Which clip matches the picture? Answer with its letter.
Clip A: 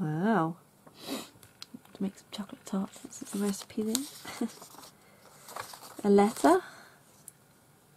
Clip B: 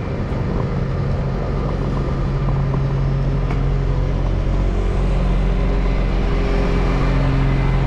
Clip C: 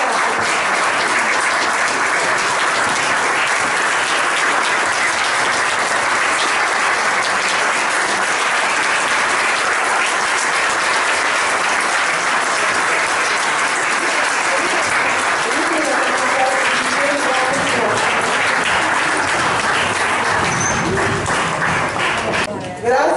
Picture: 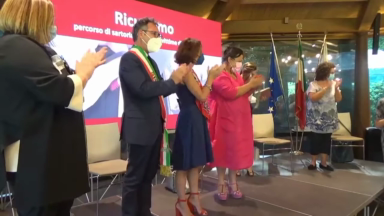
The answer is C